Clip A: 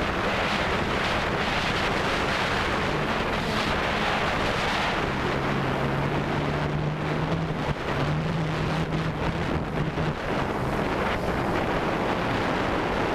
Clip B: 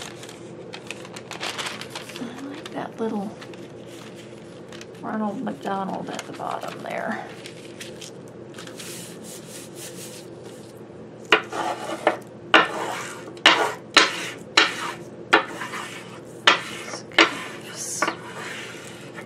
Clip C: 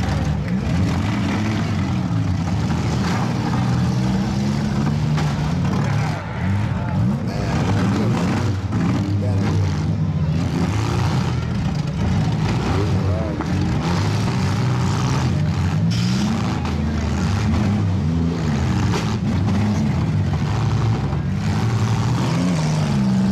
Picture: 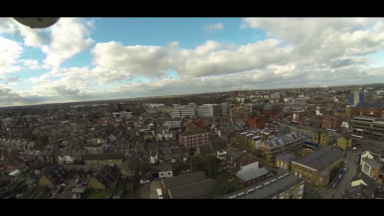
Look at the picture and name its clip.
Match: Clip A